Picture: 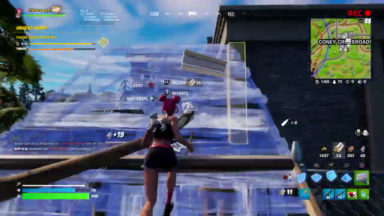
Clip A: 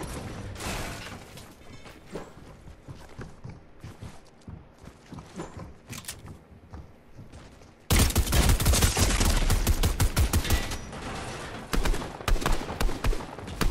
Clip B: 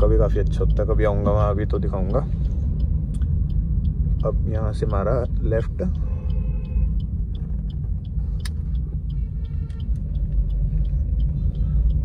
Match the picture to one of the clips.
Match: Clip A